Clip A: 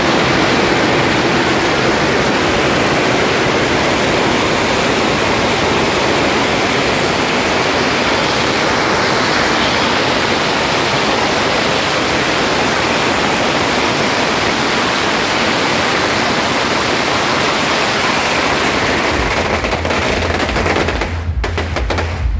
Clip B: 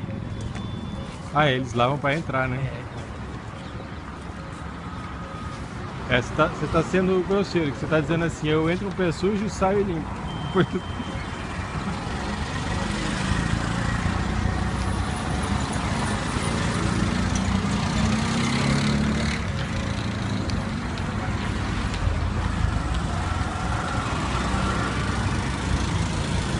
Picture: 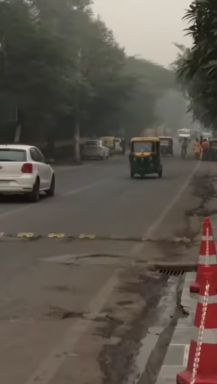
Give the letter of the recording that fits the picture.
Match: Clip B